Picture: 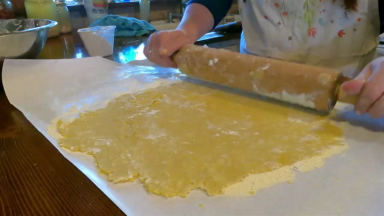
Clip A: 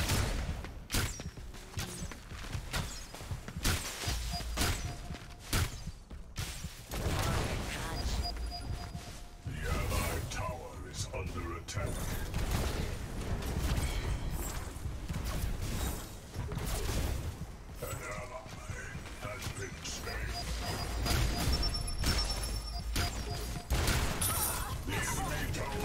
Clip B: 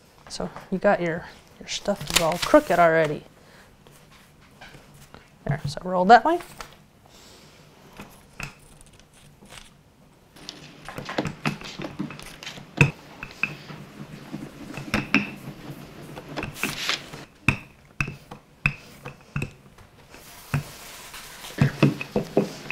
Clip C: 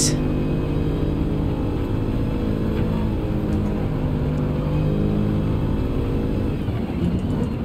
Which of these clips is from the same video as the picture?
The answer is B